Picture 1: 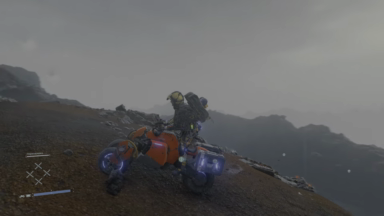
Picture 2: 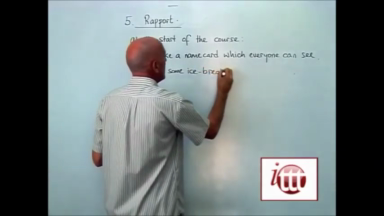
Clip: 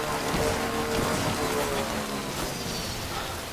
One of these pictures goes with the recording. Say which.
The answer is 1